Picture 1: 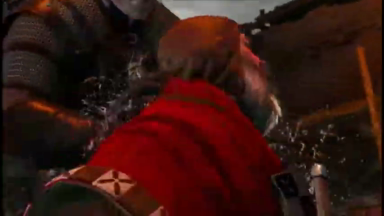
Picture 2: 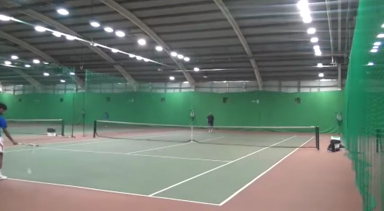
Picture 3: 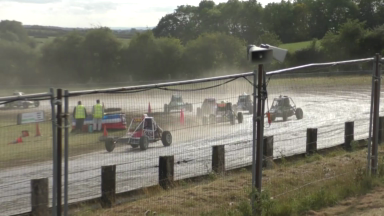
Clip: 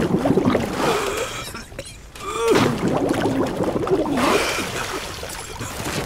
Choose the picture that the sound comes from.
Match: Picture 1